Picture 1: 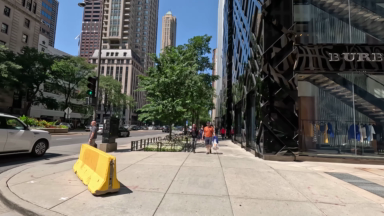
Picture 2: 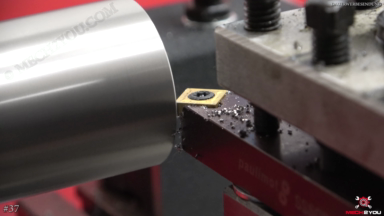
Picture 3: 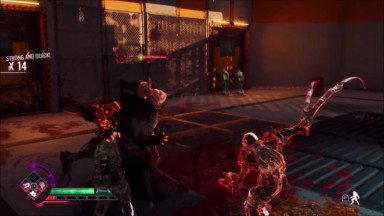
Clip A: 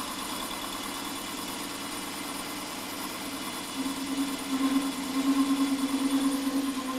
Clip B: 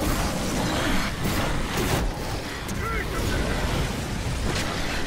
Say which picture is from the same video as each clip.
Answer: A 2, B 3